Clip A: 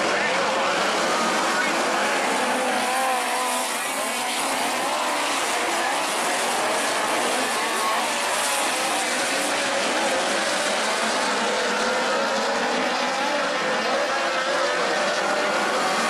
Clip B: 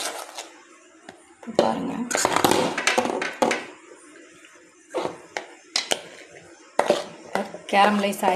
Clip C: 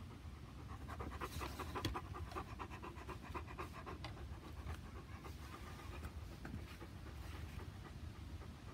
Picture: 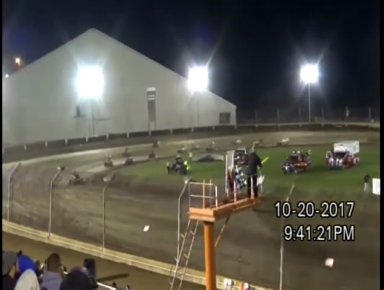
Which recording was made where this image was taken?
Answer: A